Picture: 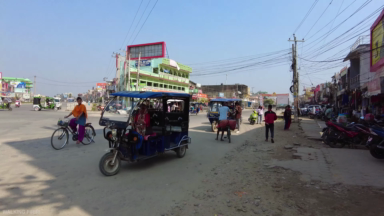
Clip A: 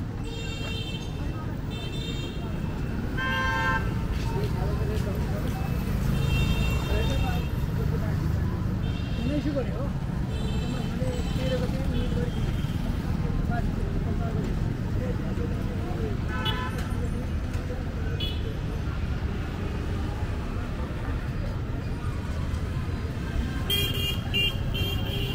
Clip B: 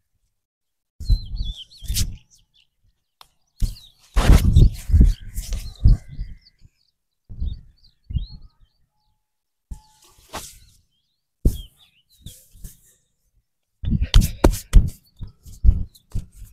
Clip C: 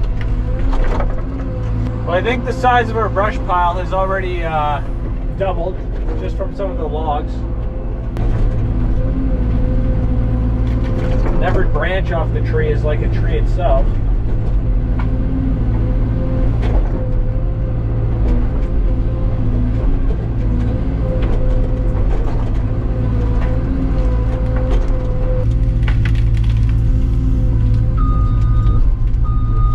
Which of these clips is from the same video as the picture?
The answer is A